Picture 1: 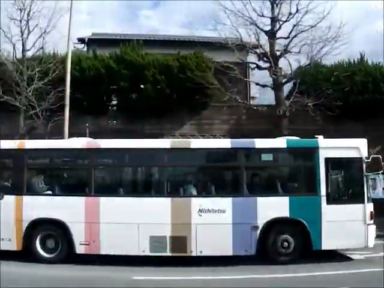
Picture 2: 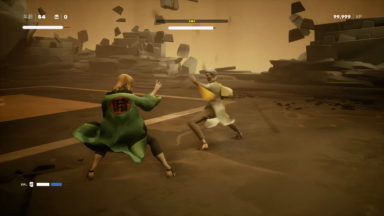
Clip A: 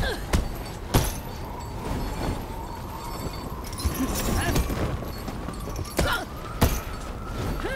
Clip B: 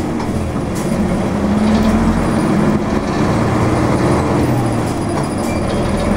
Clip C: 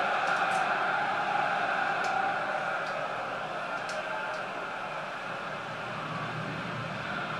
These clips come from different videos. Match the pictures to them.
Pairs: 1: B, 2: A